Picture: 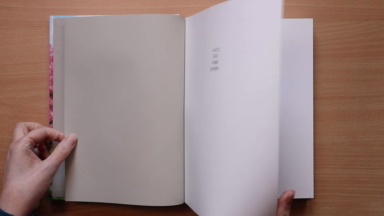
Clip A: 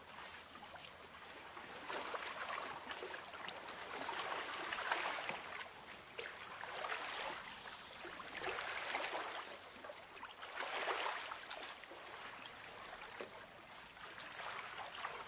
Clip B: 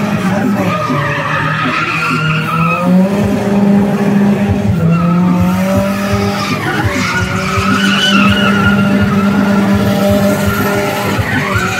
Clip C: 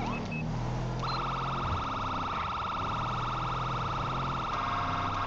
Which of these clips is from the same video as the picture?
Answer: A